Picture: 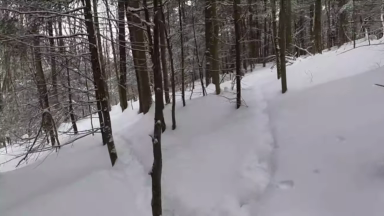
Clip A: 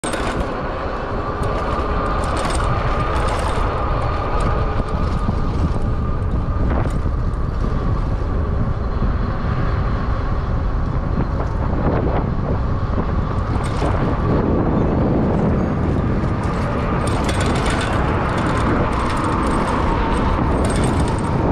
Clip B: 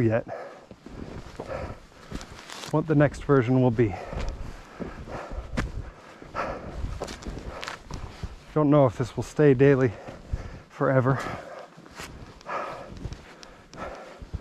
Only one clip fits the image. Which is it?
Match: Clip B